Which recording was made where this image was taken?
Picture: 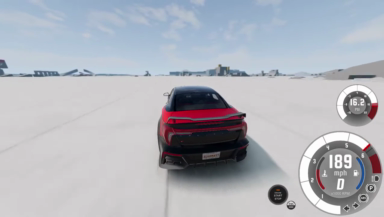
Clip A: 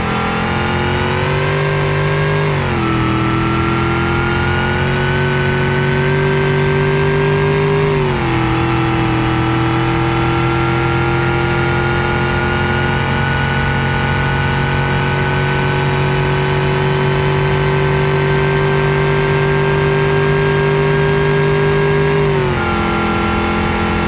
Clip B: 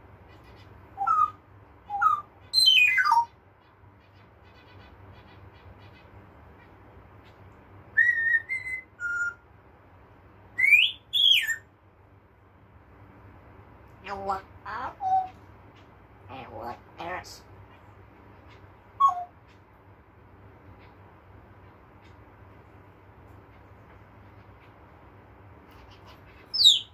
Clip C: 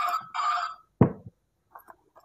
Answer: A